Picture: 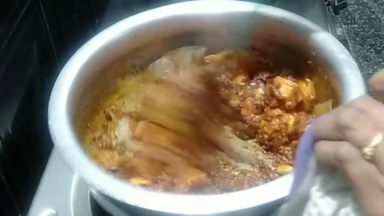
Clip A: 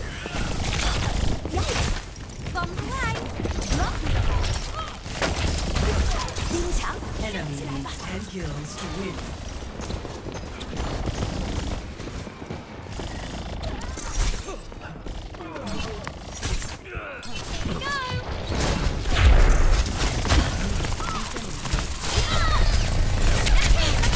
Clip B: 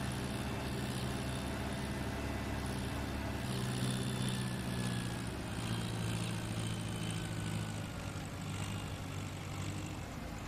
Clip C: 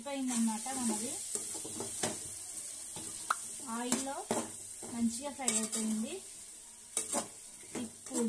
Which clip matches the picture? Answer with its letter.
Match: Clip C